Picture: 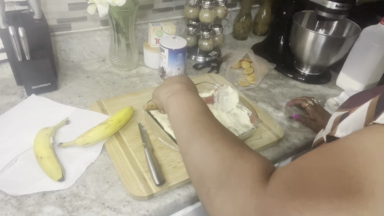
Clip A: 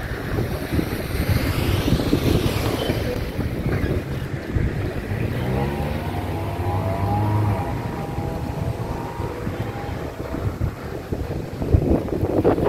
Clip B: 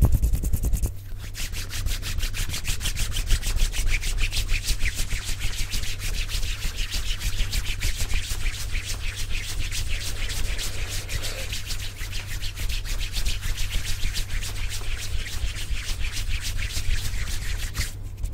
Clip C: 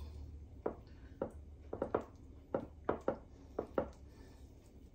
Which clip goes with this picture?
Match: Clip C